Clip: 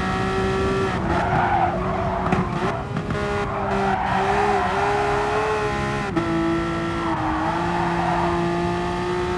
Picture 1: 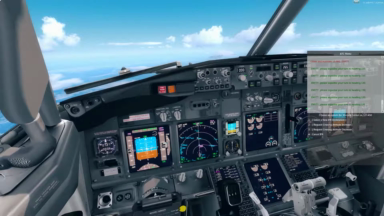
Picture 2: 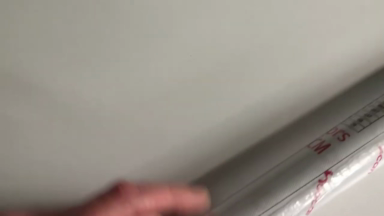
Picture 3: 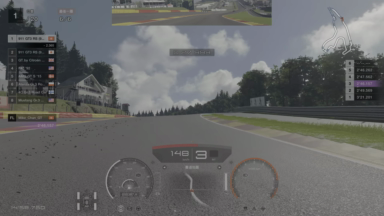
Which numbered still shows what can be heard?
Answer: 3